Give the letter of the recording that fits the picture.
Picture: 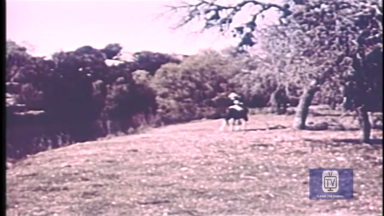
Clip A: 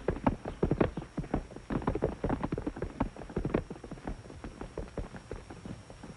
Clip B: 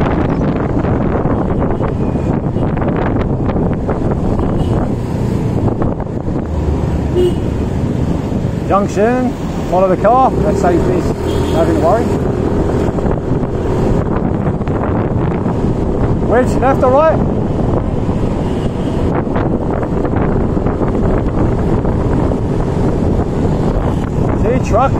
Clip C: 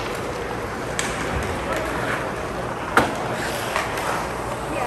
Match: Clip A